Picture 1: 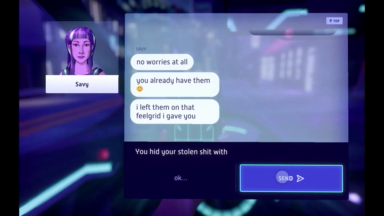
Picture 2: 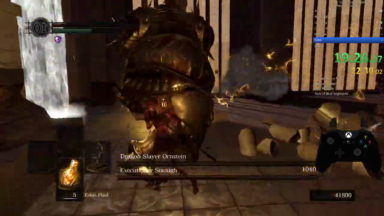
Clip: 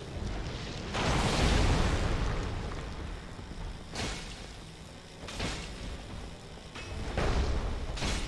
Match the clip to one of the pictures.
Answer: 2